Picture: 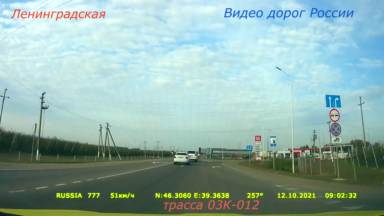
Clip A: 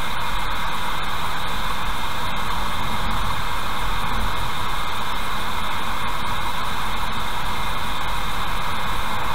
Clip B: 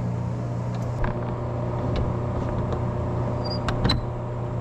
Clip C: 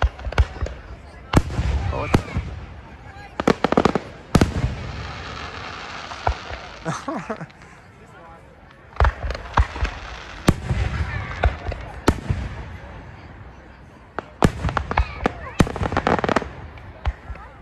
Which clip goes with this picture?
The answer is A